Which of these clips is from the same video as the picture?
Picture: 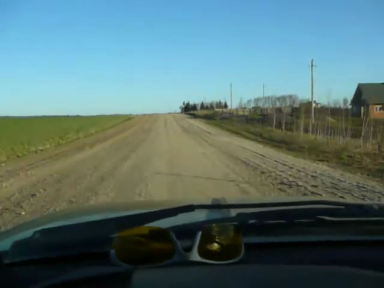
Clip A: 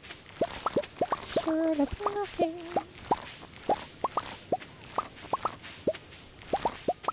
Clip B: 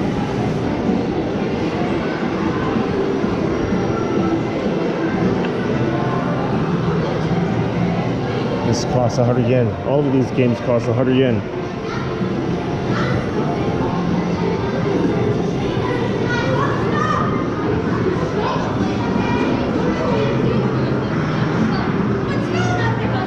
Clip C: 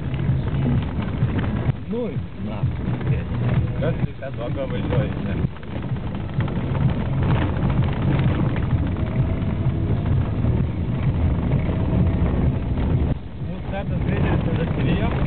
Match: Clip C